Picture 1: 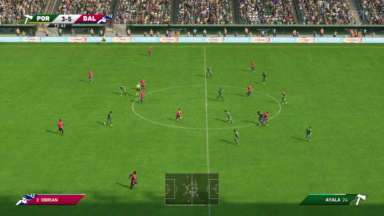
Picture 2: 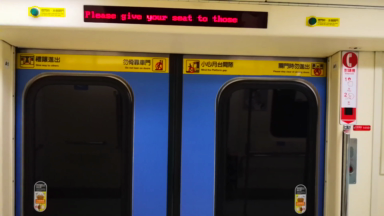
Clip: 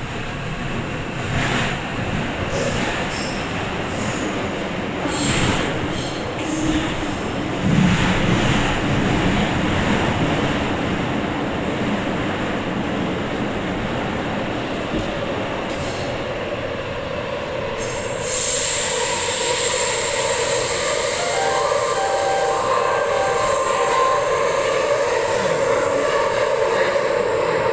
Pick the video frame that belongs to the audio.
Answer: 2